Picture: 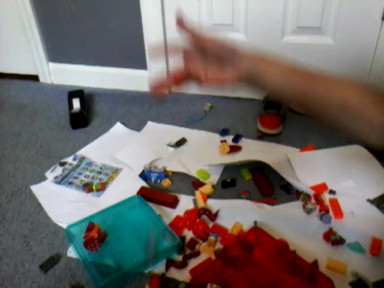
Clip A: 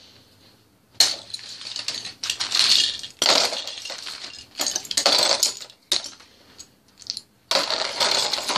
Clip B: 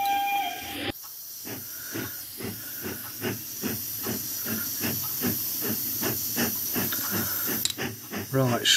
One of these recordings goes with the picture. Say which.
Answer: A